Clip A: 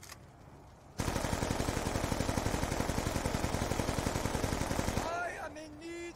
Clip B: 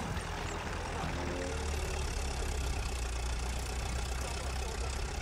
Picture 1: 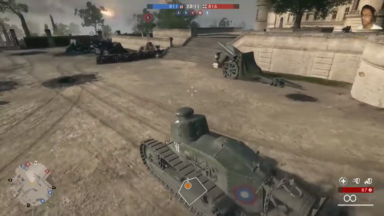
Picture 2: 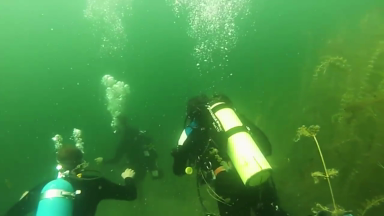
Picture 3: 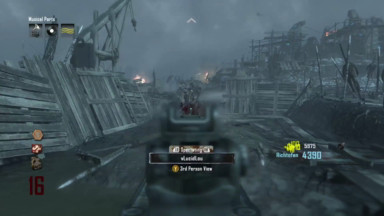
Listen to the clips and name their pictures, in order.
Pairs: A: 3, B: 1